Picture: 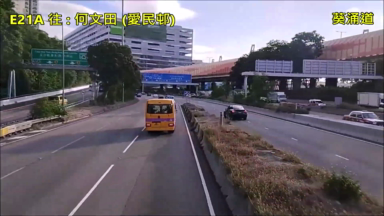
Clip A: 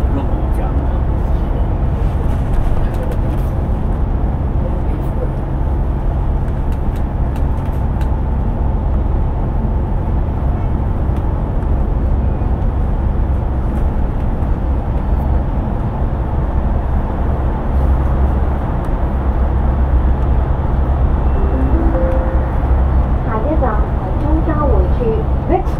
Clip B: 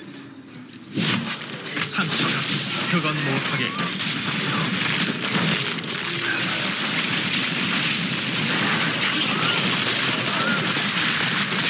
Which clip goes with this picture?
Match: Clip A